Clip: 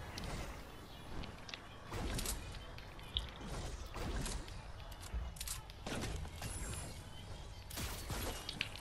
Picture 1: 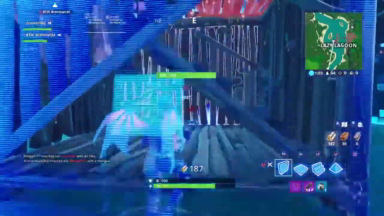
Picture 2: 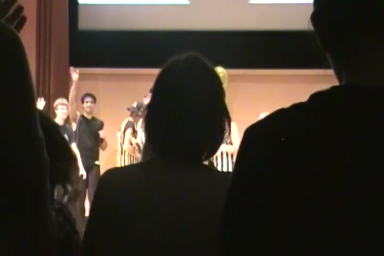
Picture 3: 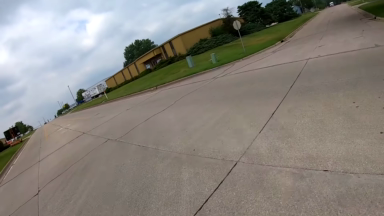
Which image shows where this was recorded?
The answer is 1